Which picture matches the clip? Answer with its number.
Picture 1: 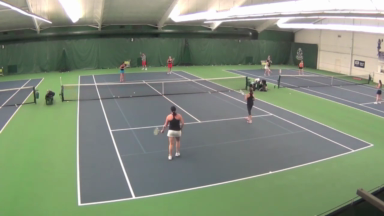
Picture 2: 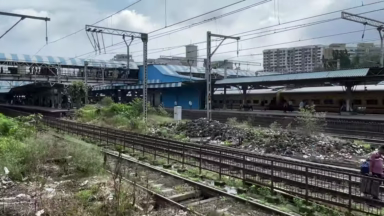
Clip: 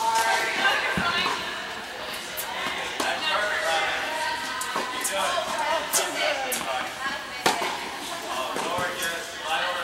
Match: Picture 1